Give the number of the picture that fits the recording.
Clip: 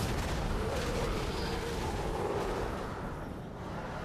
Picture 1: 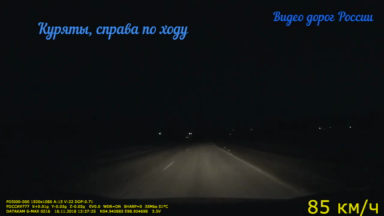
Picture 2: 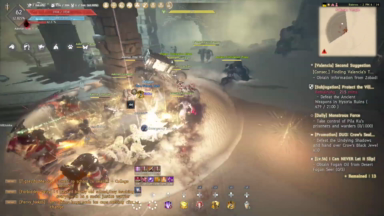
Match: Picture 2